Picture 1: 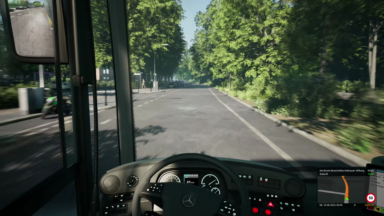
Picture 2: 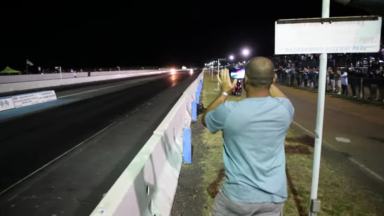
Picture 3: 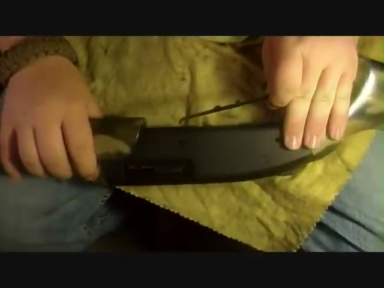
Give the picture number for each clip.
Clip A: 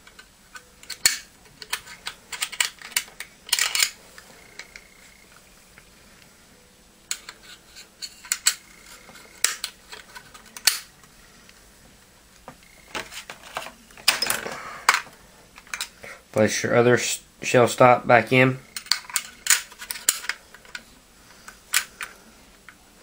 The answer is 3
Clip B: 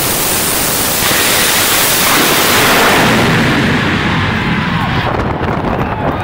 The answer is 2